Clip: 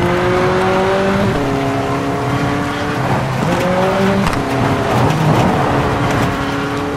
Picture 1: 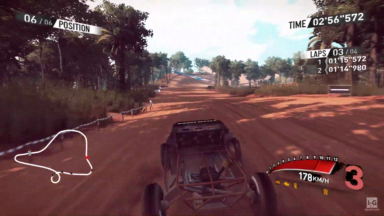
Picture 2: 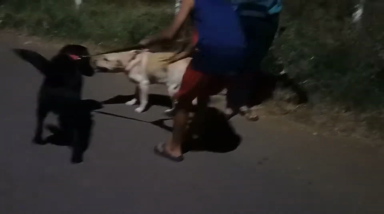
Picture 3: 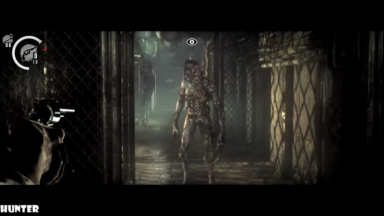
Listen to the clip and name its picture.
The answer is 1